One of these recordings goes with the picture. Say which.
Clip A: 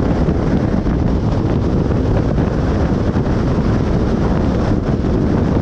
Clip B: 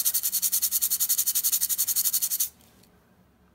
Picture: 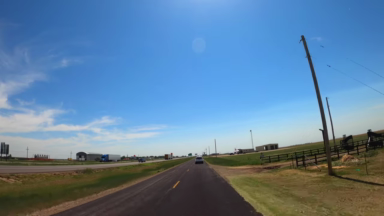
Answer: A